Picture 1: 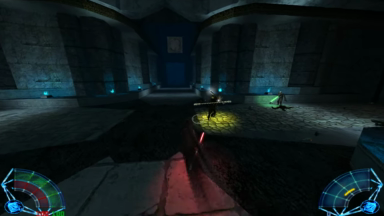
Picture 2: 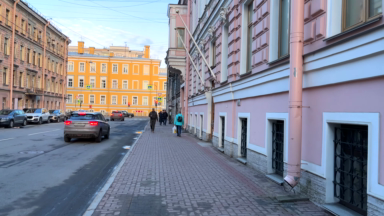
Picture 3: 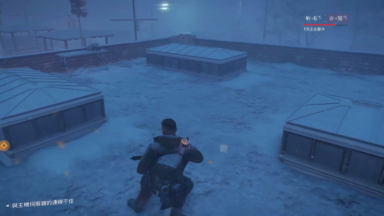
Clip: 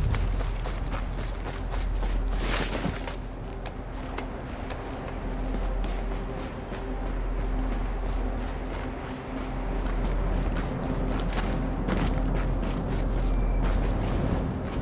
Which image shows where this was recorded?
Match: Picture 3